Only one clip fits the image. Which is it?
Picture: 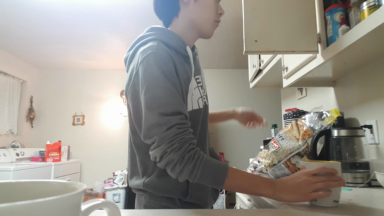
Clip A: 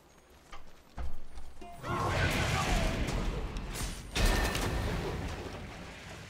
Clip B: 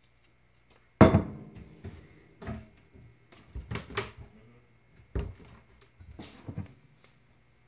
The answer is B